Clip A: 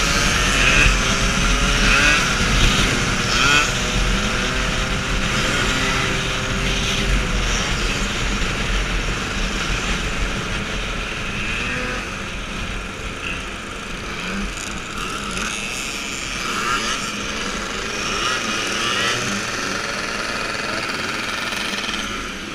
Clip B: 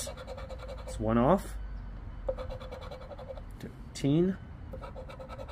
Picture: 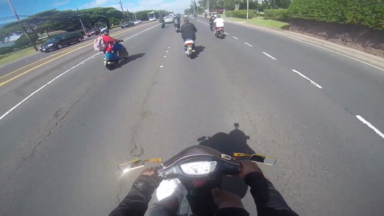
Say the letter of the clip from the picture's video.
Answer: A